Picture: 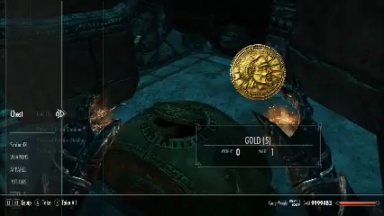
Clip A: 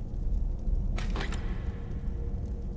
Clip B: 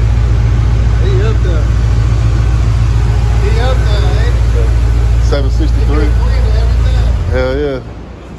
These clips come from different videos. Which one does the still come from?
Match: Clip A